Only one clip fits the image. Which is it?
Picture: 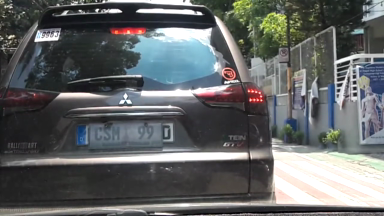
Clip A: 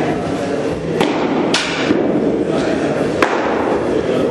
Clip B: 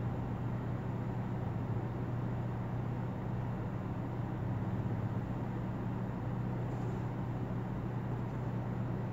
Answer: B